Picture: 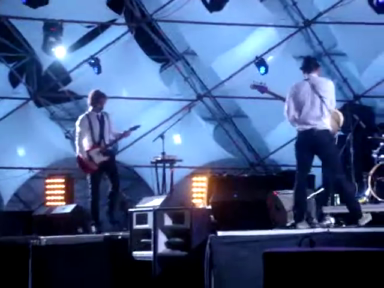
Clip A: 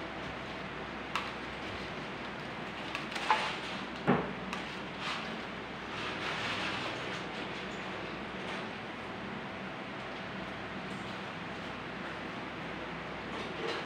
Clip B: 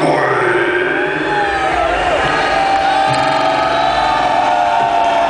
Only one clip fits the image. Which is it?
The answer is B